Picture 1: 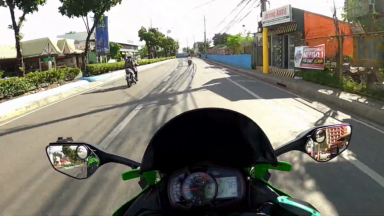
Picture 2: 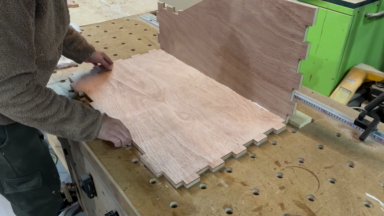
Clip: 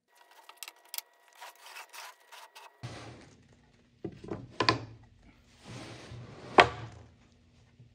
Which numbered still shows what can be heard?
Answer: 2